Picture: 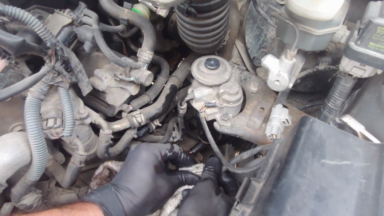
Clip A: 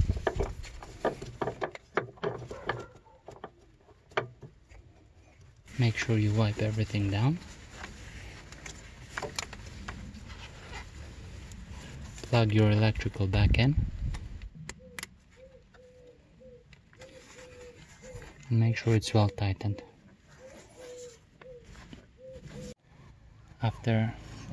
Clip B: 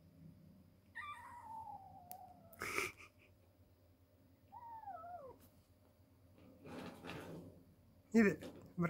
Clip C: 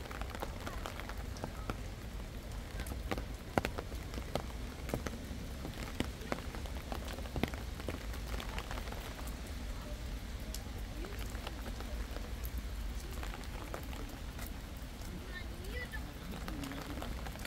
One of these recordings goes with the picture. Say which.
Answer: A